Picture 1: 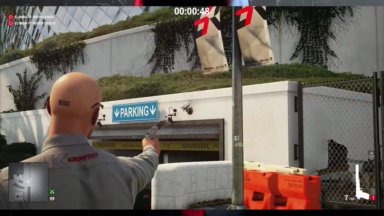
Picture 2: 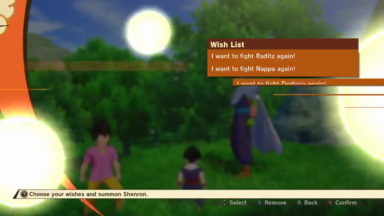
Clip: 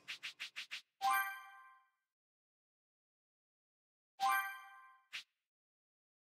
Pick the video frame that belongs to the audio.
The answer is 2